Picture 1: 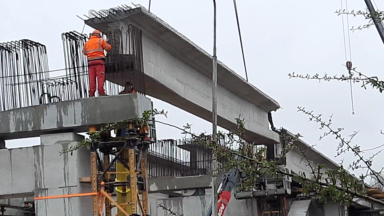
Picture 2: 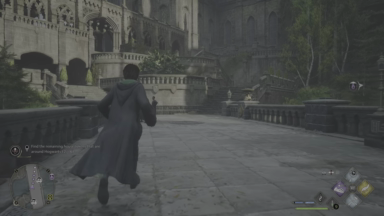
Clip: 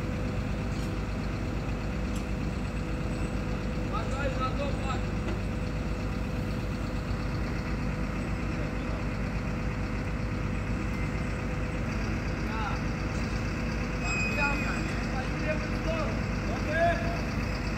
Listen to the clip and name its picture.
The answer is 1